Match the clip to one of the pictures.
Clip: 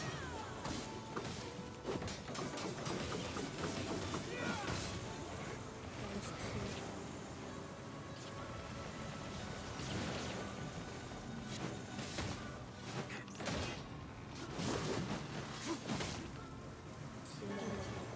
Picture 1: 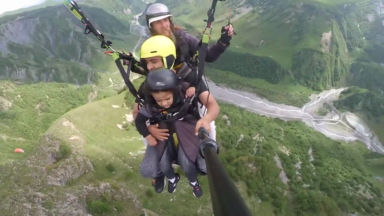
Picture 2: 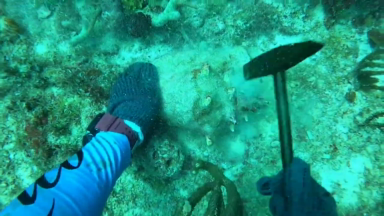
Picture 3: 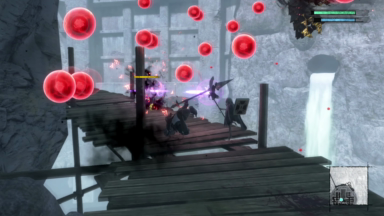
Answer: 3